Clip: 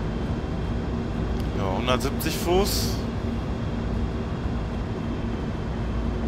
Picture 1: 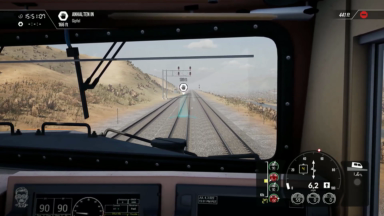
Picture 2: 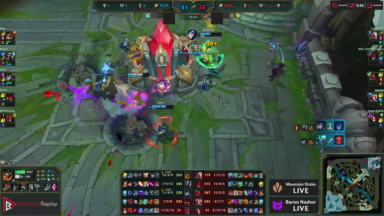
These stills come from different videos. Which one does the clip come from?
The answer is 1